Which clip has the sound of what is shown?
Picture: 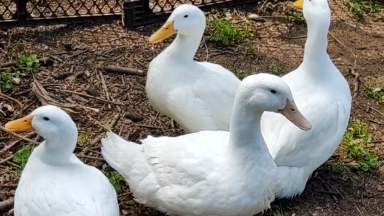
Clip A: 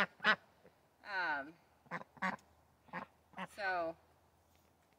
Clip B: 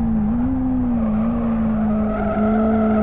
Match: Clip A